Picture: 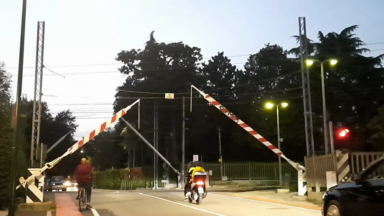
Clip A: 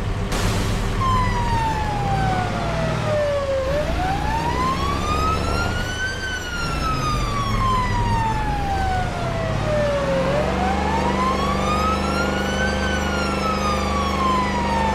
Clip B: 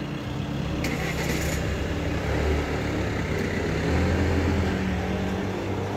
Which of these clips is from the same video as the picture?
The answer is B